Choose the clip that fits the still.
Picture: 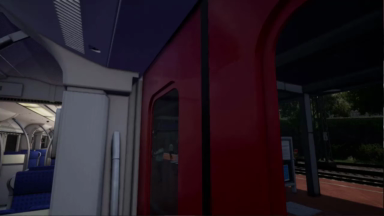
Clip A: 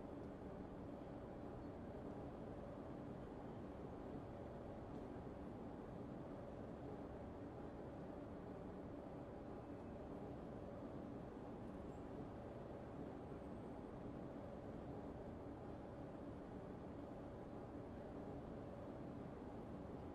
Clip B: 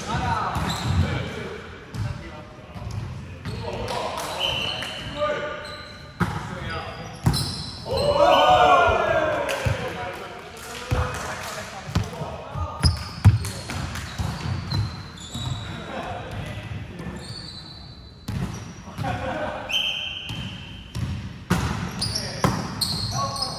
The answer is A